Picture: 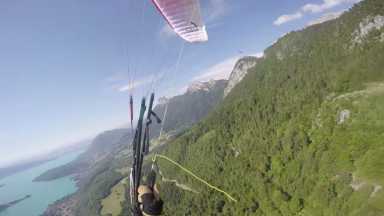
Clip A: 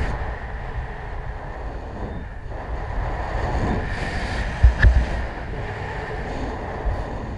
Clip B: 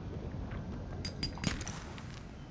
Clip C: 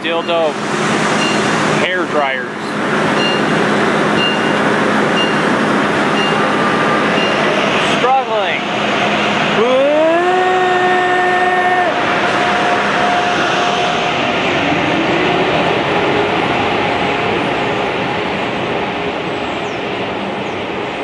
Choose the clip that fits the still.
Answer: A